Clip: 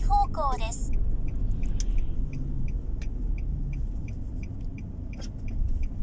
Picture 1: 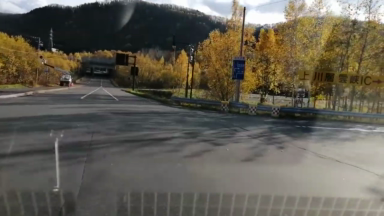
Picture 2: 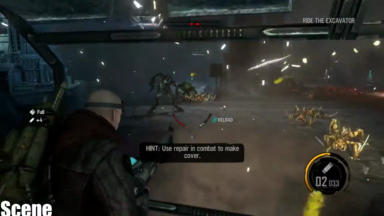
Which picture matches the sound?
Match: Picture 1